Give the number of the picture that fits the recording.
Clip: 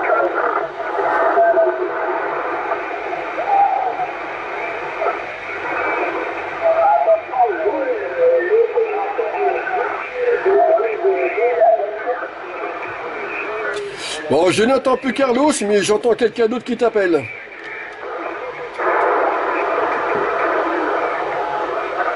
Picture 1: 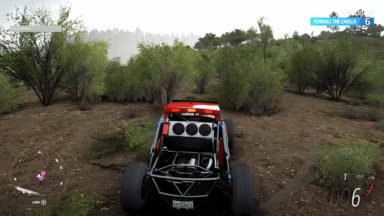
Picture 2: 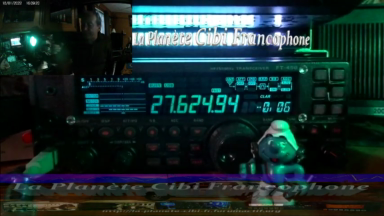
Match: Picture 2